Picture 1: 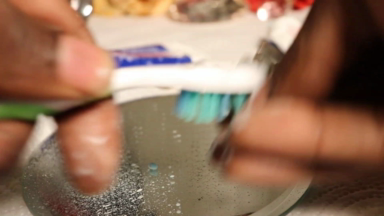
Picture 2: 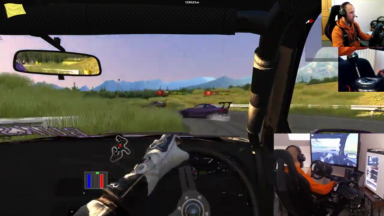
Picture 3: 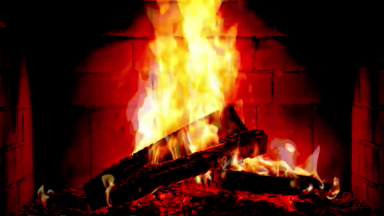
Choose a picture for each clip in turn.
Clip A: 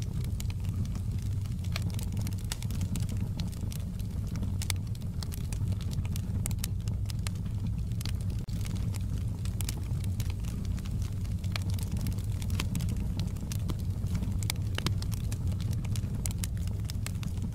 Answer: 3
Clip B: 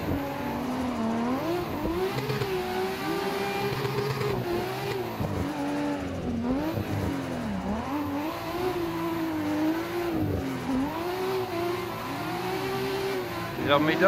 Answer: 2